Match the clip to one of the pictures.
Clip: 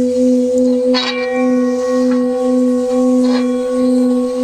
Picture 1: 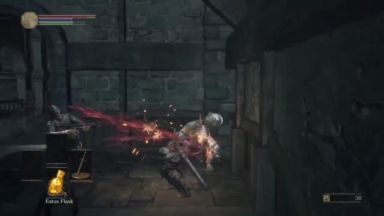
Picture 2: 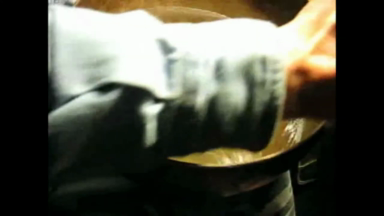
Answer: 2